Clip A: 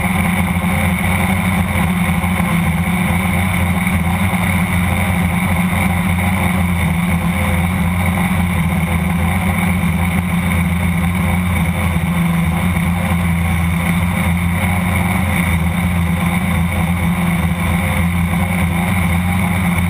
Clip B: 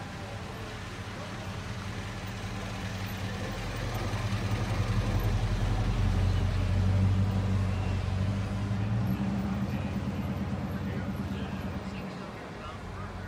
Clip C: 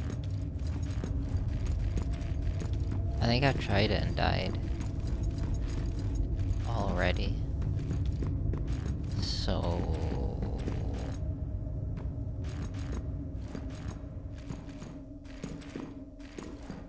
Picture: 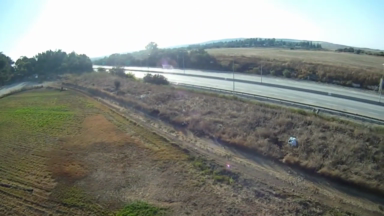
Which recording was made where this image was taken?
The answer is A